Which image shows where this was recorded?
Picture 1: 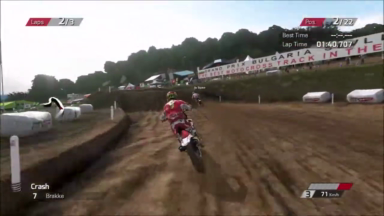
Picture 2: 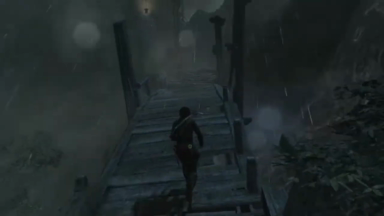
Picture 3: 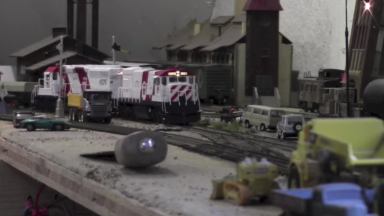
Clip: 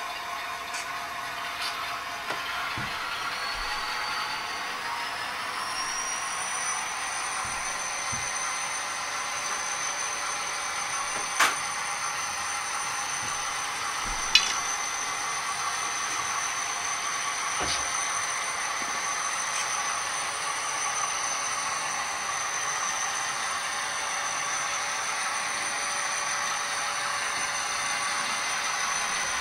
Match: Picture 3